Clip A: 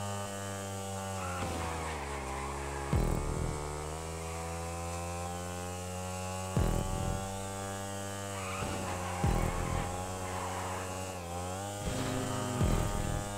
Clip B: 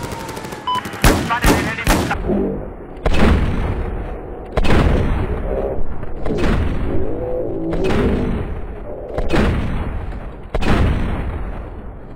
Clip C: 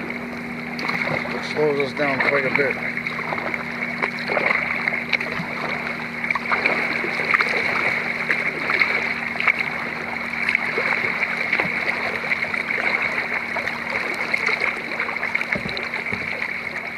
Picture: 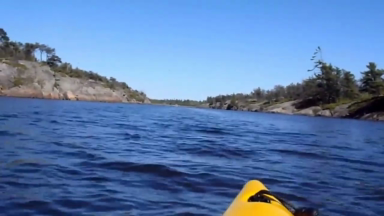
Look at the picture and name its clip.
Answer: C